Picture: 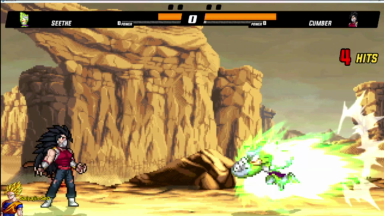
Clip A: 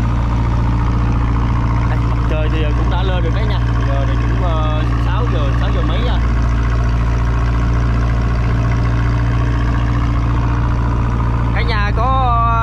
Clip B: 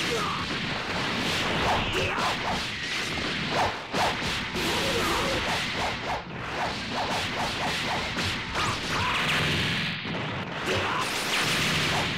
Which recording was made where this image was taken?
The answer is B